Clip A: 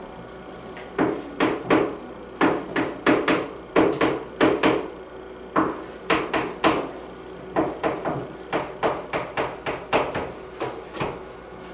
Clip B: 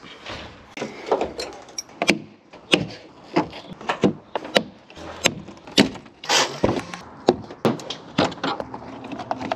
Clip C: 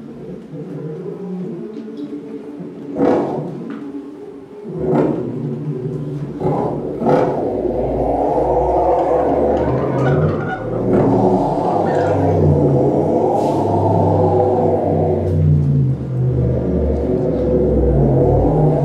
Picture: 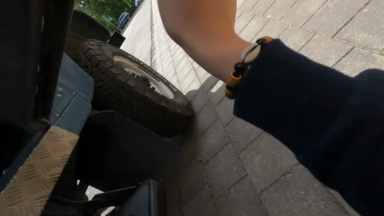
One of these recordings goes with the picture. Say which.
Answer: B